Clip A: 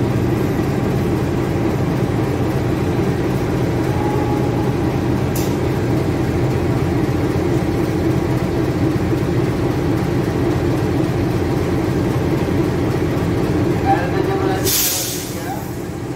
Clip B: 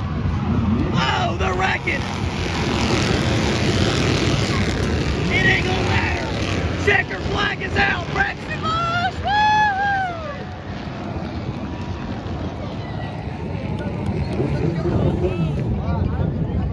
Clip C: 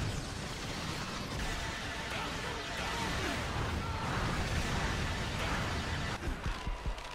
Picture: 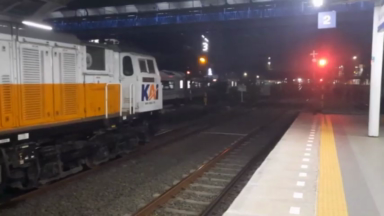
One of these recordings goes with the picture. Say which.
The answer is A